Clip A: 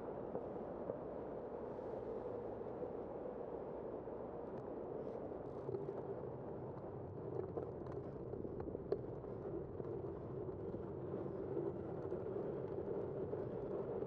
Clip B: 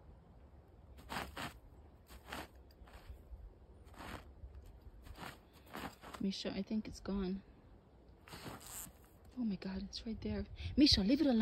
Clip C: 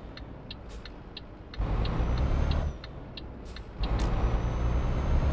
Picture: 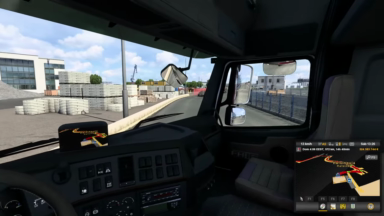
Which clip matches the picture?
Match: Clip C